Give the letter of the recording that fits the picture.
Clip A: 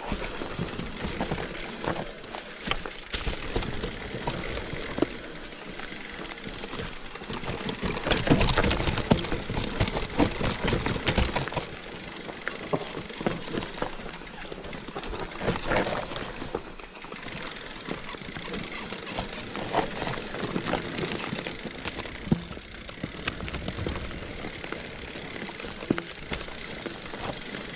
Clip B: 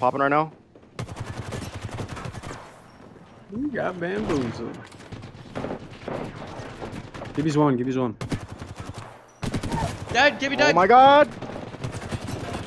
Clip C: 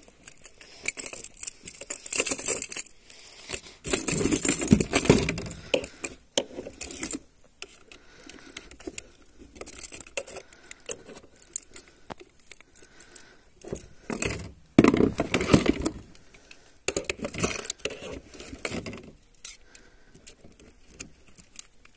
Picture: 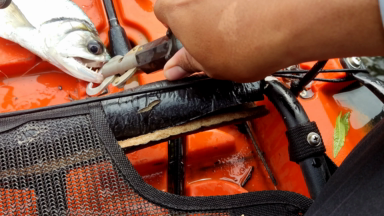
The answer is C